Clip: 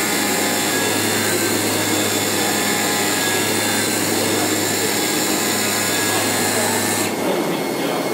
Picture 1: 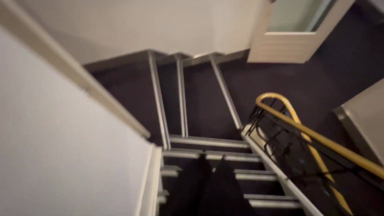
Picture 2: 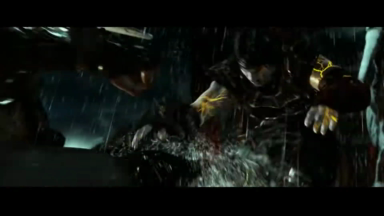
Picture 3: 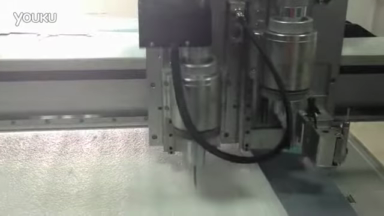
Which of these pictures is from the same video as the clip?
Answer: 3